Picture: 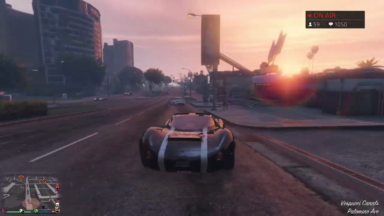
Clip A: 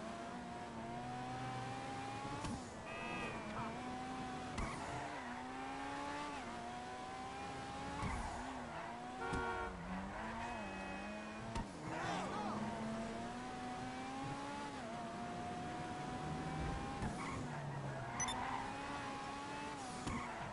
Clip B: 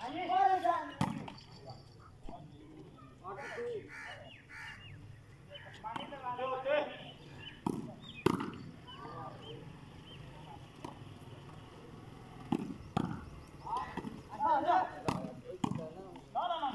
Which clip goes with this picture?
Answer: A